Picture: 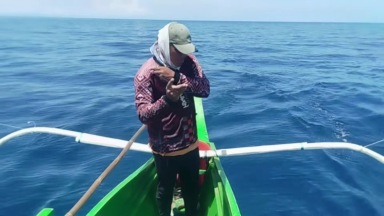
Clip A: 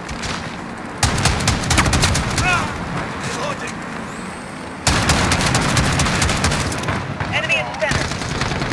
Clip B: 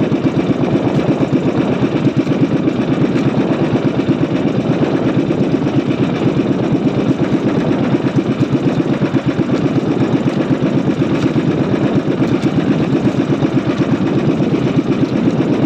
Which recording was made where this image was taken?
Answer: B